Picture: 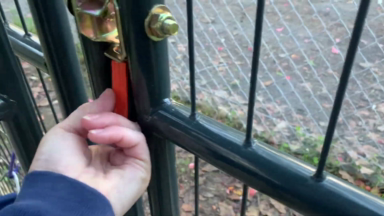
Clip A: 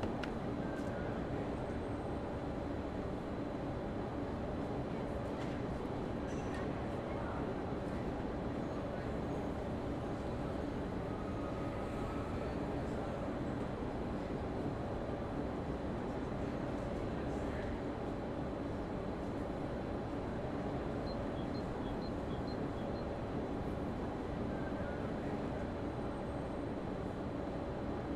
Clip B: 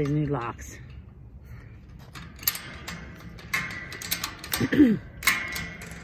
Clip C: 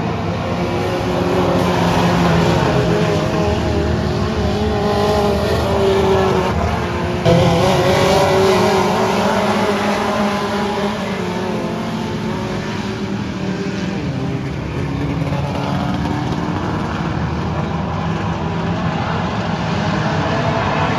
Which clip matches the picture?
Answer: B